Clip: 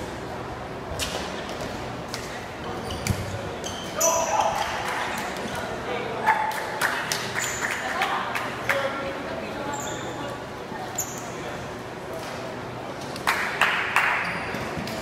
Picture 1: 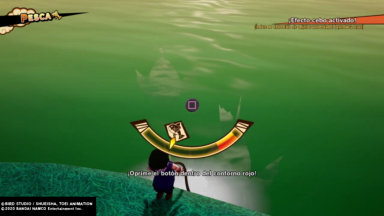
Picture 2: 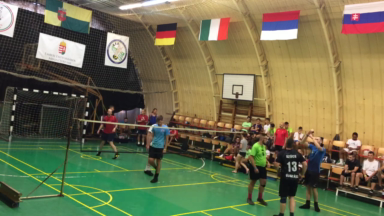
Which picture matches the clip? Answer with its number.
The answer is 2